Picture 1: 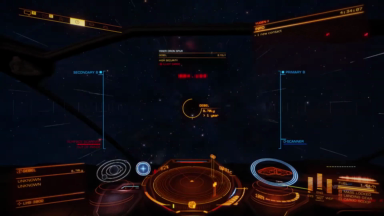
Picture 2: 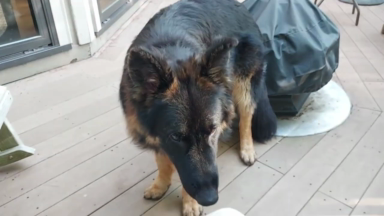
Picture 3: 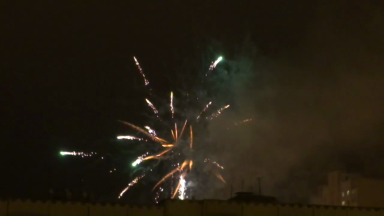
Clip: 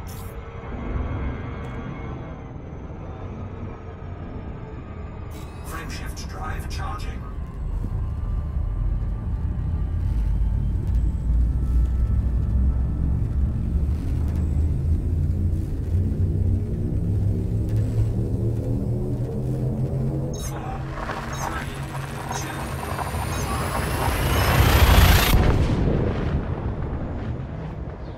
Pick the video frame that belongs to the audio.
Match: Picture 1